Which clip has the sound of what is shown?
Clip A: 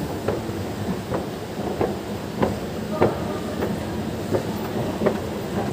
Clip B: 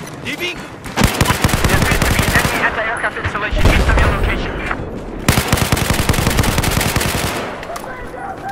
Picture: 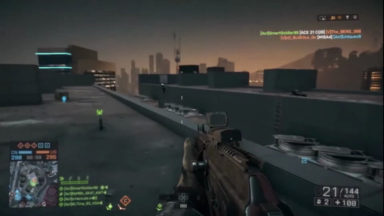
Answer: B